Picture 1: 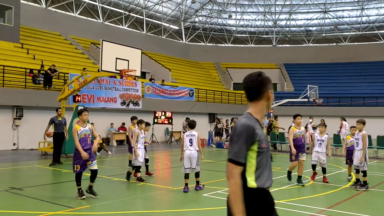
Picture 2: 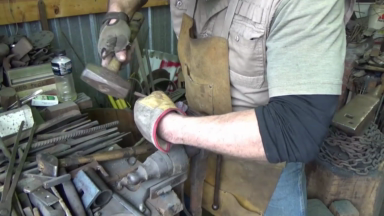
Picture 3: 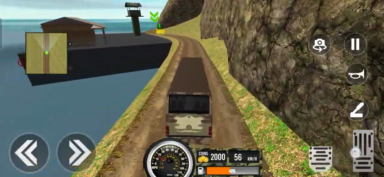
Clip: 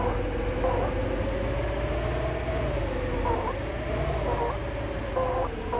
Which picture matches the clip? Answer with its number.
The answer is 3